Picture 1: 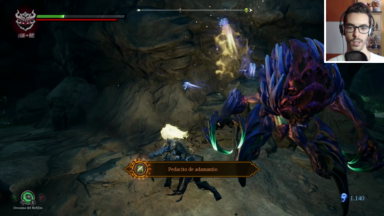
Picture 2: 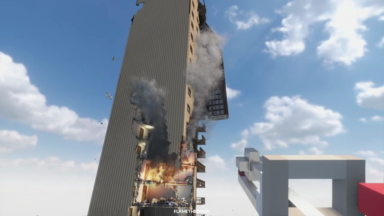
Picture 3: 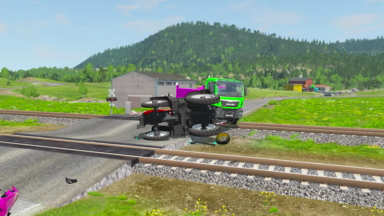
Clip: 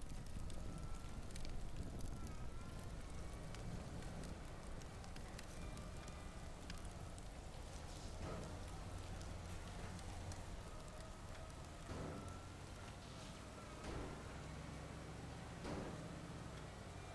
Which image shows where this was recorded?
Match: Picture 2